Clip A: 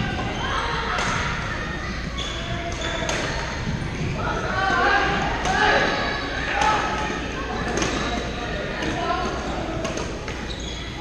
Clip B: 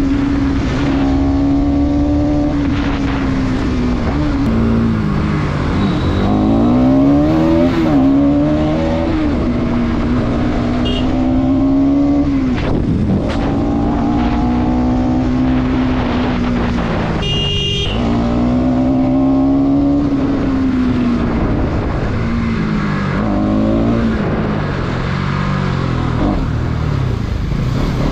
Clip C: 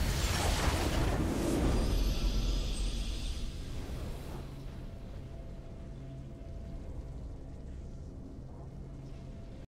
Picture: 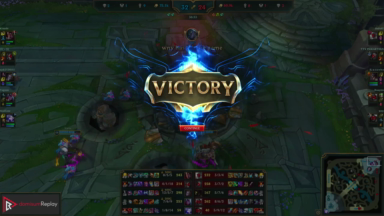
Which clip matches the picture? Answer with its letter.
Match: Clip C